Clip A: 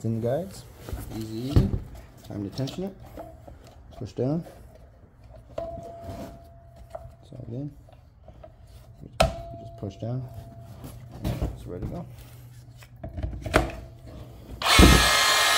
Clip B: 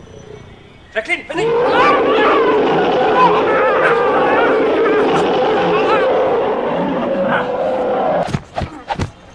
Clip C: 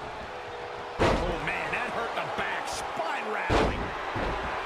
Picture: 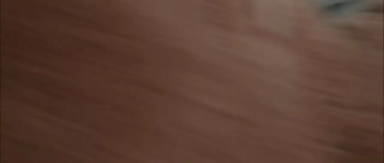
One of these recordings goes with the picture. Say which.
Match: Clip B